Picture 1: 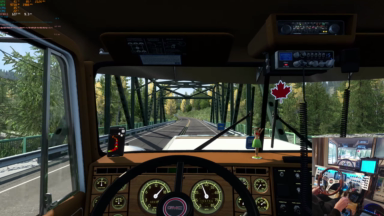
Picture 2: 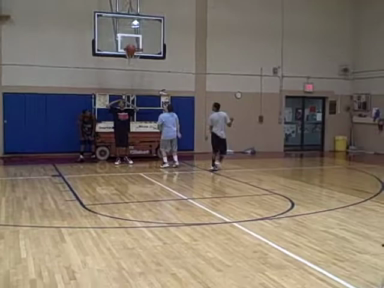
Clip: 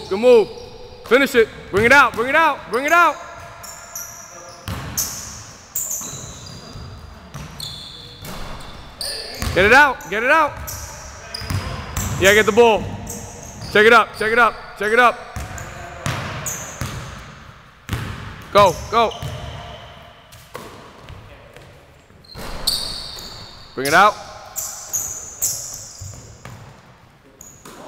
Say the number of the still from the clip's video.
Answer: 2